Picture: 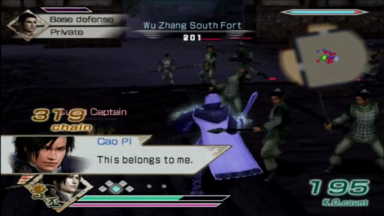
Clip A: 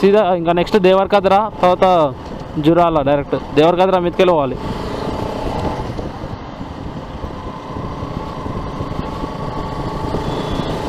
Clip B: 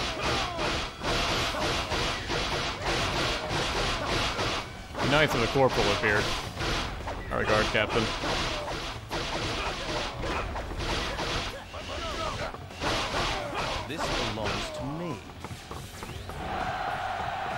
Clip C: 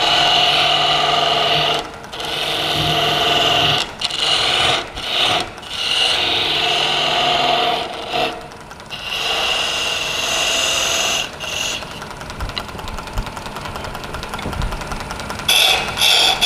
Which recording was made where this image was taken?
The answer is B